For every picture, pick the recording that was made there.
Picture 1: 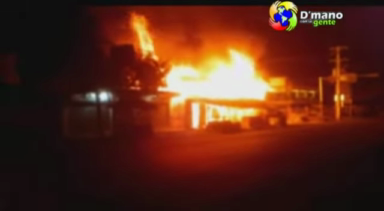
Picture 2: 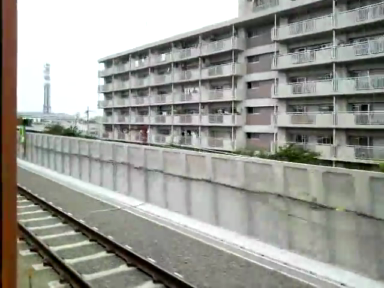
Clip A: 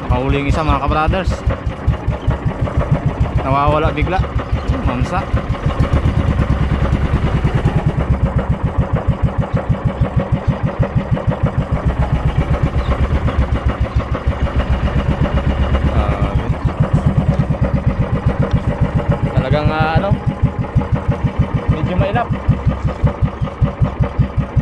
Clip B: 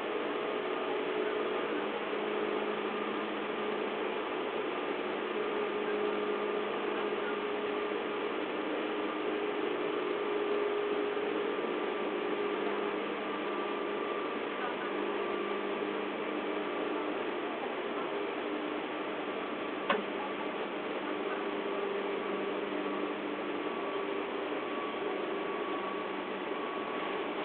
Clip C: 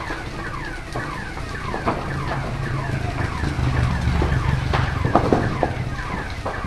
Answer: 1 C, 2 B